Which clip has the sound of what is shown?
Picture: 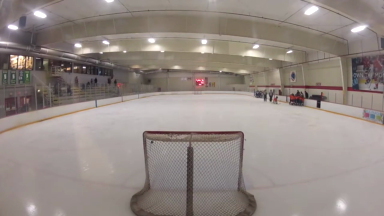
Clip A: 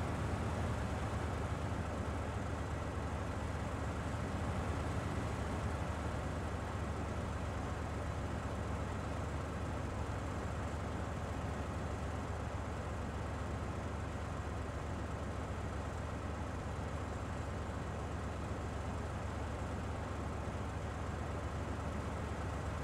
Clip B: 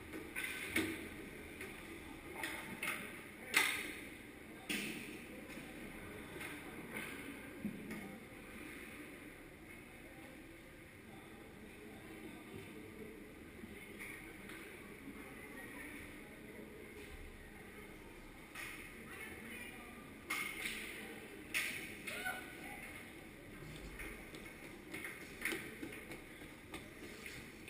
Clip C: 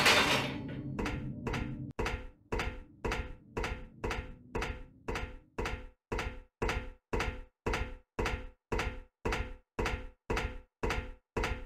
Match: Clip B